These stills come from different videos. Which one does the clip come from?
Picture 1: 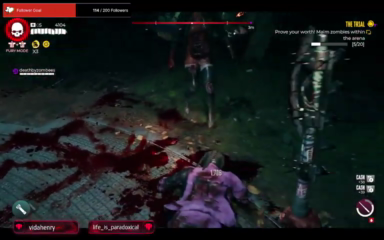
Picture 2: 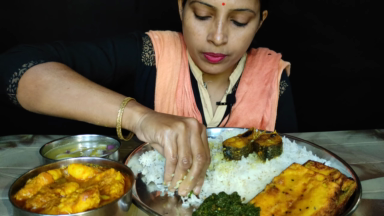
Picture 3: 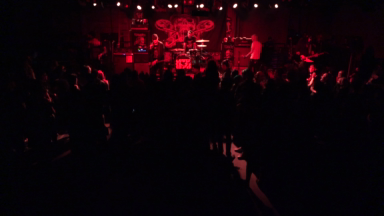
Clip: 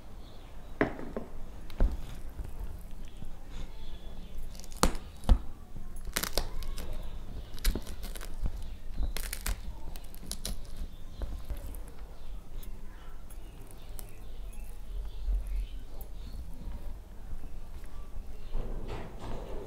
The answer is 2